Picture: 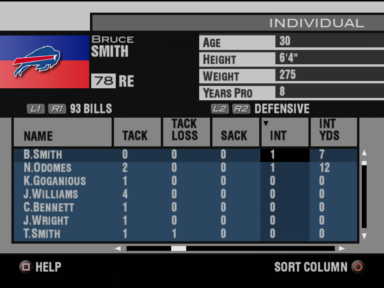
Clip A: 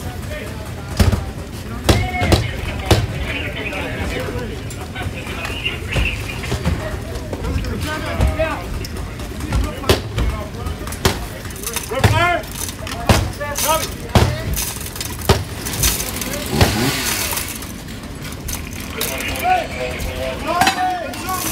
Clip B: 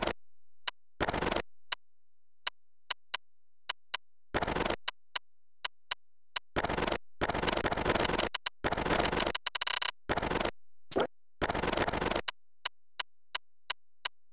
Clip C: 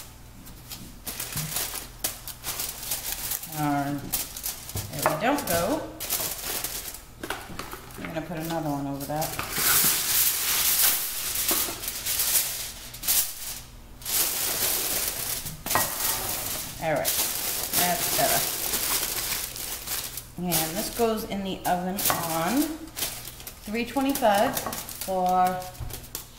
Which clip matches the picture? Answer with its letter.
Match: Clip B